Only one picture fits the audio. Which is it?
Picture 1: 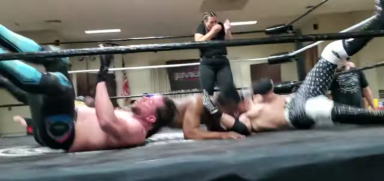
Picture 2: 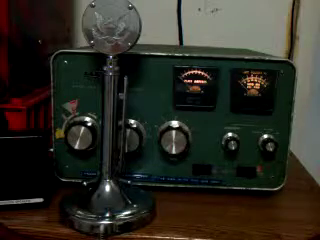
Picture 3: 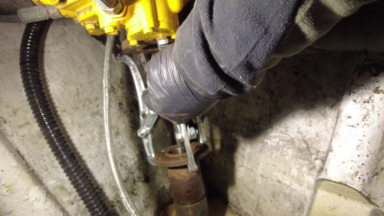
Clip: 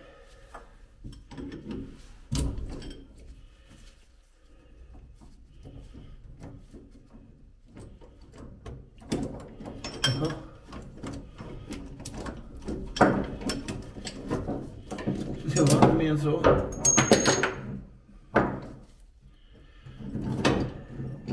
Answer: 3